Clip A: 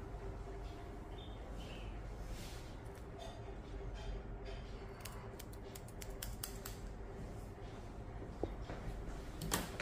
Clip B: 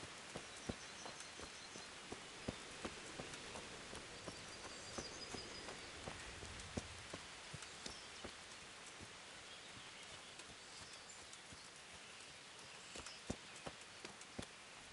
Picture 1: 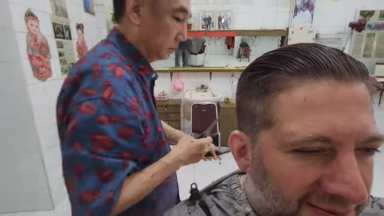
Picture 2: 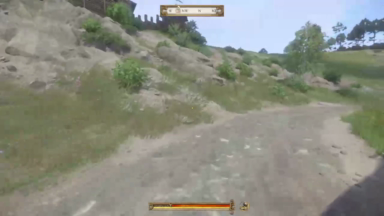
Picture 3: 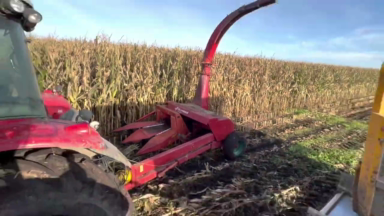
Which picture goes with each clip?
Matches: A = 1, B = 2